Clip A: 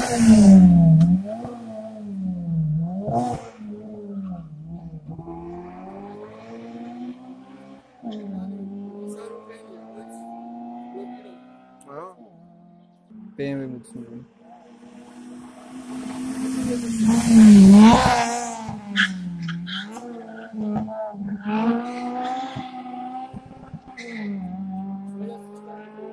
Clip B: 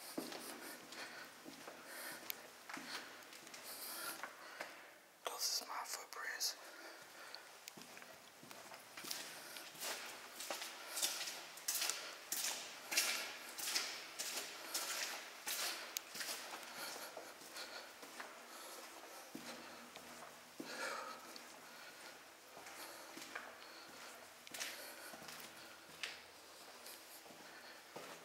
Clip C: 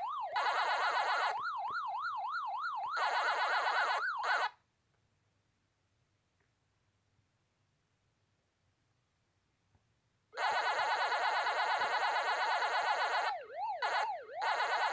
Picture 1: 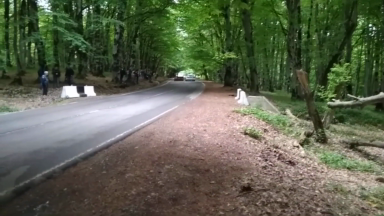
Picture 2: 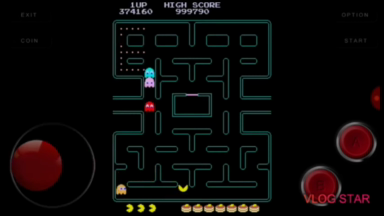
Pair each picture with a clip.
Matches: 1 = A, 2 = C